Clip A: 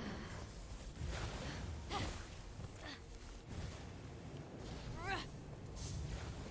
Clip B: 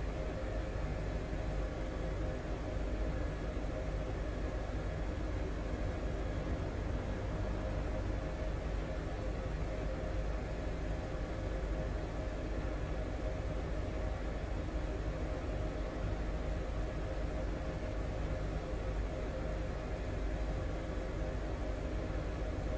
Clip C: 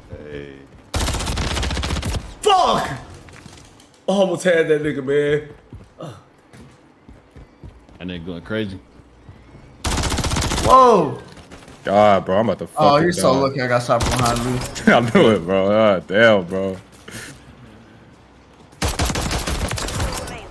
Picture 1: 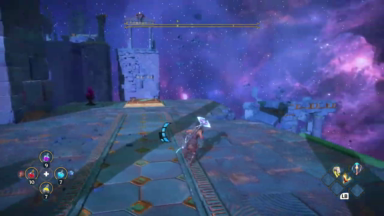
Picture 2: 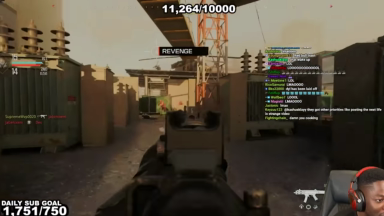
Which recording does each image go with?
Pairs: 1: A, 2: C